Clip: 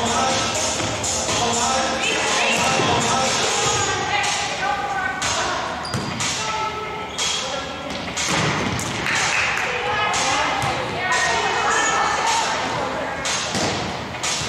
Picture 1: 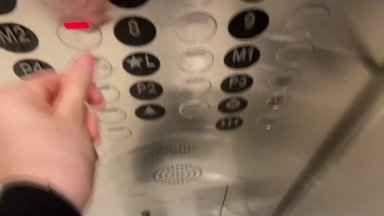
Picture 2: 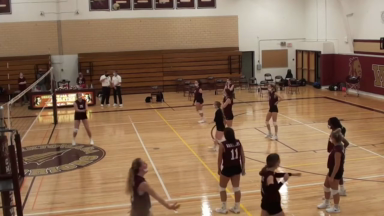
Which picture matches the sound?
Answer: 2